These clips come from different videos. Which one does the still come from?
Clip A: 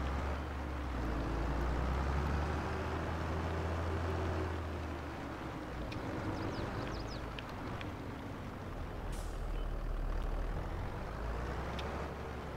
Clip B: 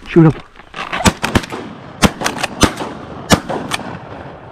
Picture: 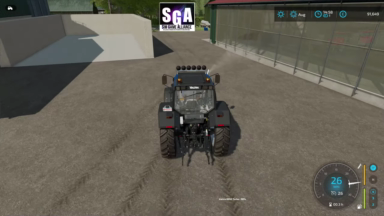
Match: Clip A